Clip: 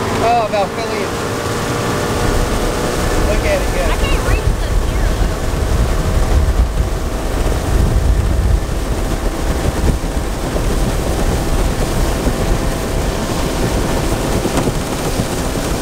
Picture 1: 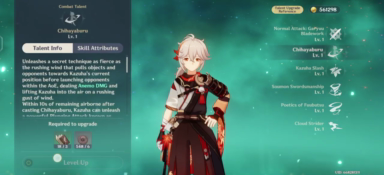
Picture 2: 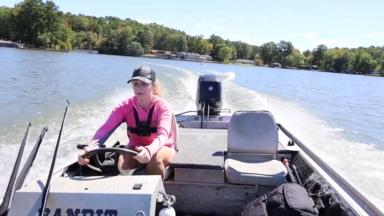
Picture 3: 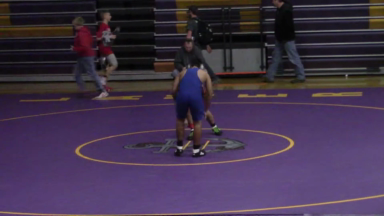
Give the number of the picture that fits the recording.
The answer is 2